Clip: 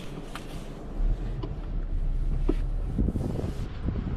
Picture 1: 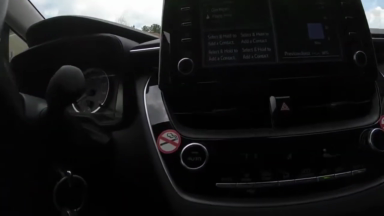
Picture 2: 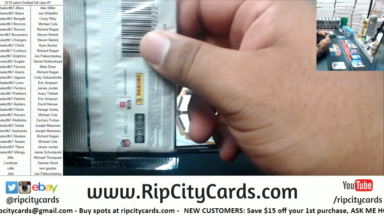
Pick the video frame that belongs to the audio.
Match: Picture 1